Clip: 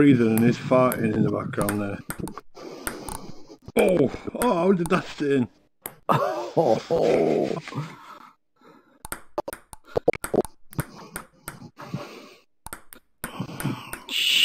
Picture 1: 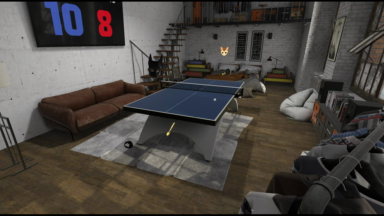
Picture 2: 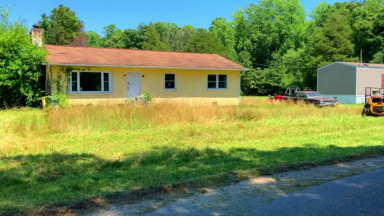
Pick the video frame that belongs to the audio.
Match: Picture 1